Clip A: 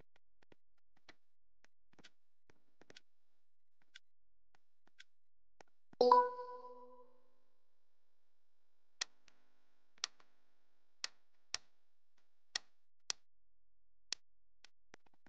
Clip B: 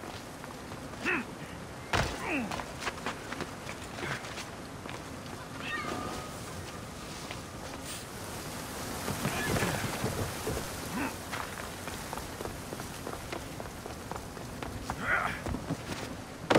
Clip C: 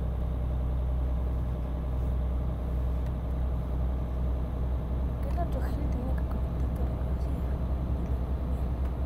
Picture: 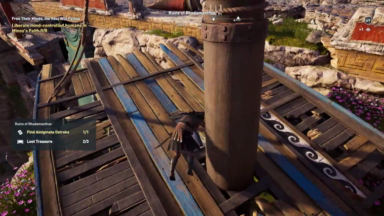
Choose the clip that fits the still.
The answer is B